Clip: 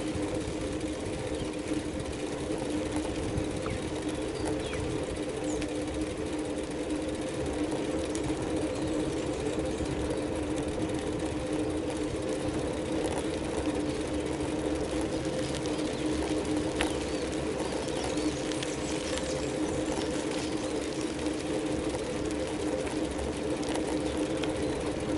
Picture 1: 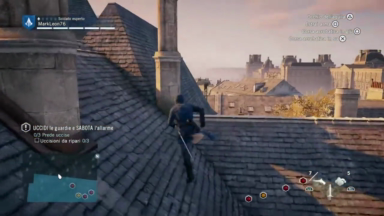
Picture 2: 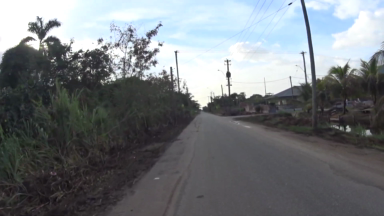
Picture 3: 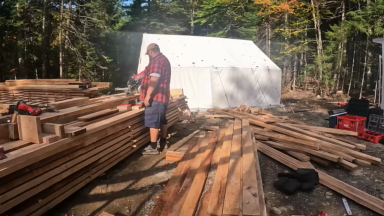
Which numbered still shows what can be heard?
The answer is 2